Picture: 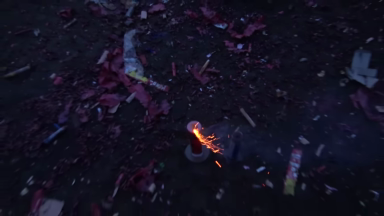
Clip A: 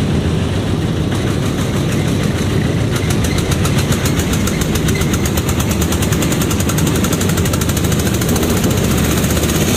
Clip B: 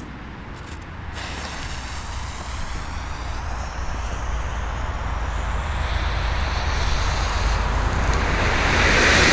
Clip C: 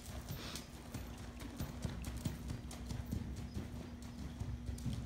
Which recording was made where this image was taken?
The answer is B